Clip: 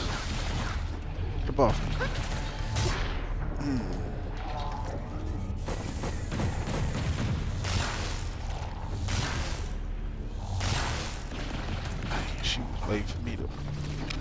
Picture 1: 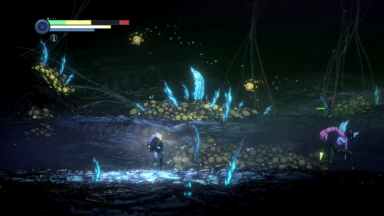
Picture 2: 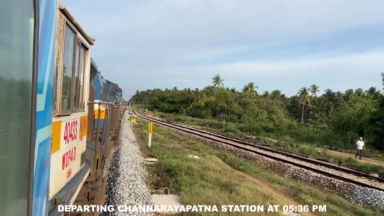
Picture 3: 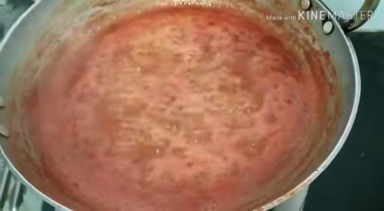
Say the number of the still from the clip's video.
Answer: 1